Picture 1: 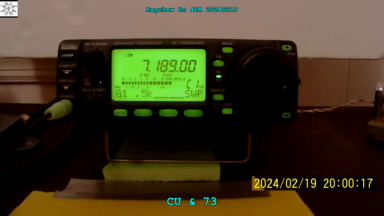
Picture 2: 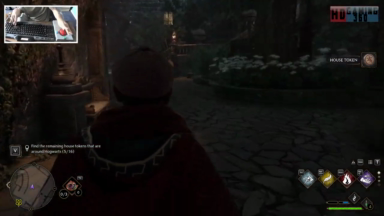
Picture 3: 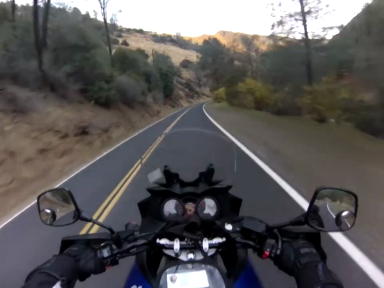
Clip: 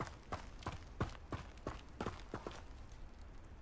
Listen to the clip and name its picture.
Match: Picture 2